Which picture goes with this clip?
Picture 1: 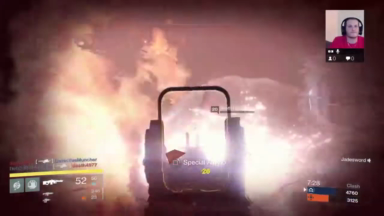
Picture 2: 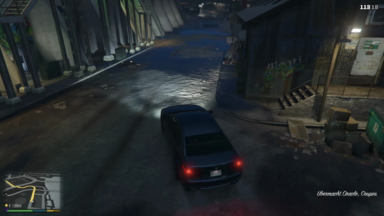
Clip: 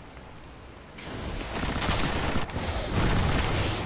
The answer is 1